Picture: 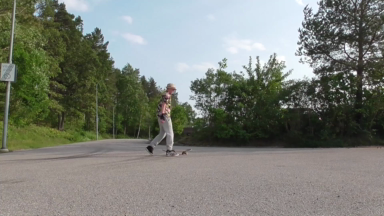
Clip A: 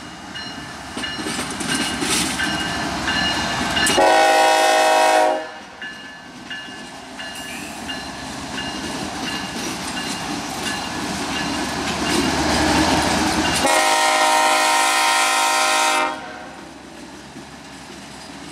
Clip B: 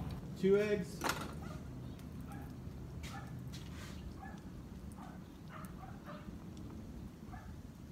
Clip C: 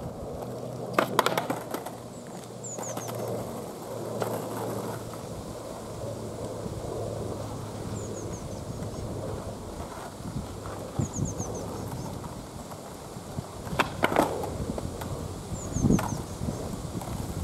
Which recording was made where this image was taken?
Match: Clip C